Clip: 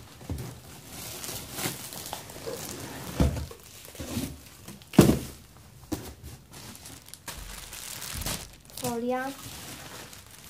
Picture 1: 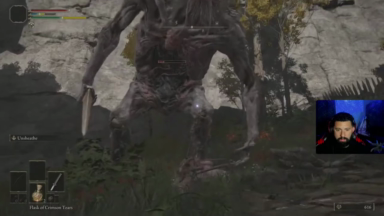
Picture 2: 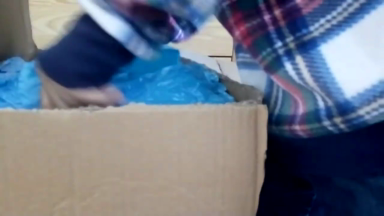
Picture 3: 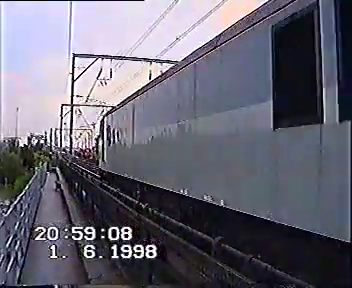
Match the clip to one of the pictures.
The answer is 2